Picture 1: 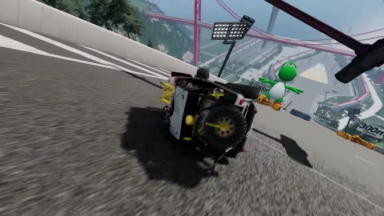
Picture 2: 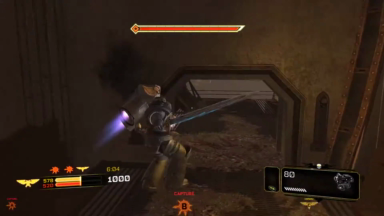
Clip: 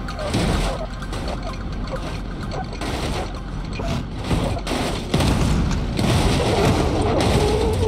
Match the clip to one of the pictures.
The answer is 1